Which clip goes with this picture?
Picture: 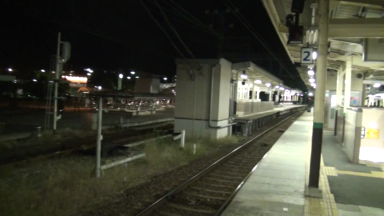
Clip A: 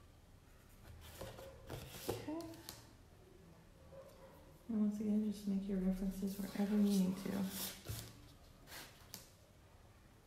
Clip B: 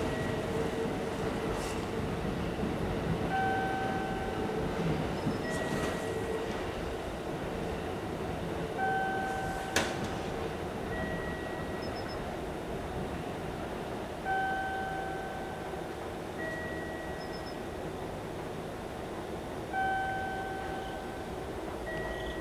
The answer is B